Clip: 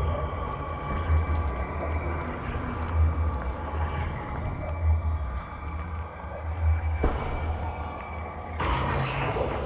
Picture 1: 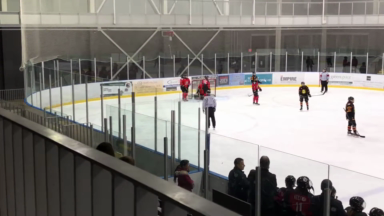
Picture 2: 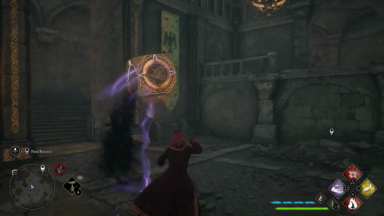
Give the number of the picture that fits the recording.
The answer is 2